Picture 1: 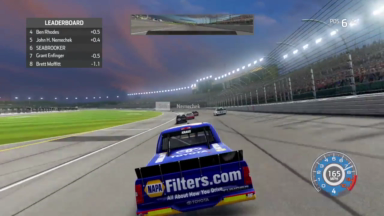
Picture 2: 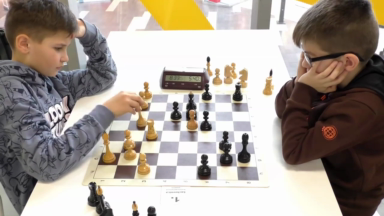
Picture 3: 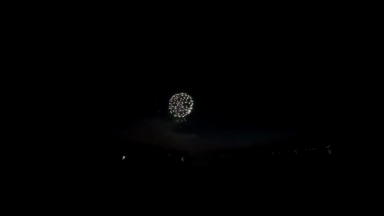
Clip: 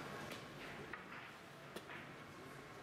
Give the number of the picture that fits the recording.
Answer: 2